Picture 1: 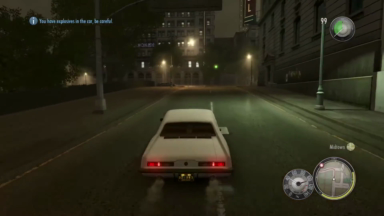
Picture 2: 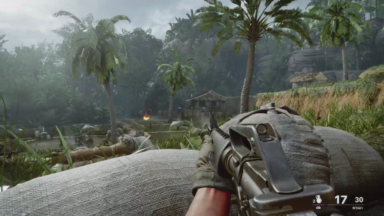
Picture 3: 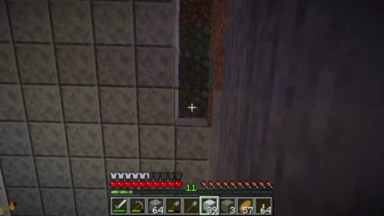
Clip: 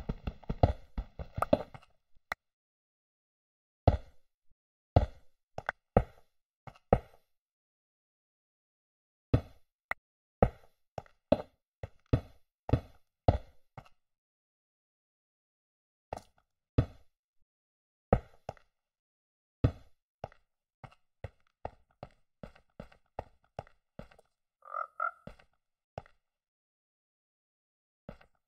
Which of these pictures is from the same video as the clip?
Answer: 3